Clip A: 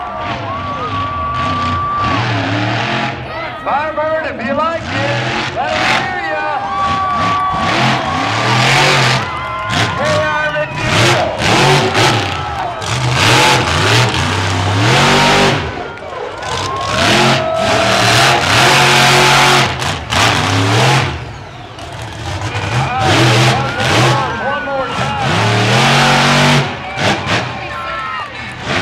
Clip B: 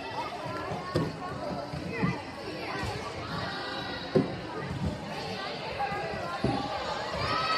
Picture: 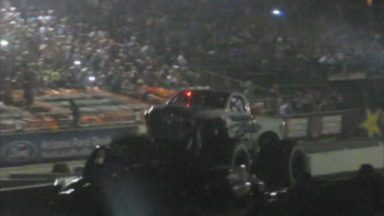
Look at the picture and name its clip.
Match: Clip A